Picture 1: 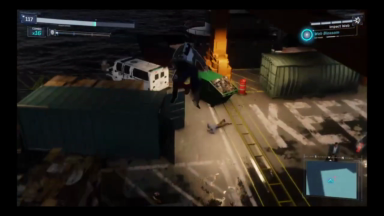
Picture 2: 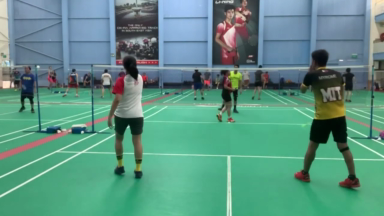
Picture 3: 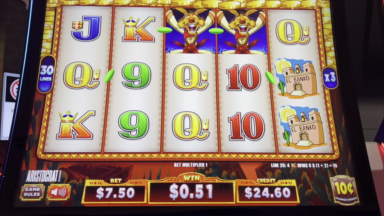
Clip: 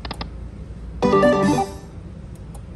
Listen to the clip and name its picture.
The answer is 3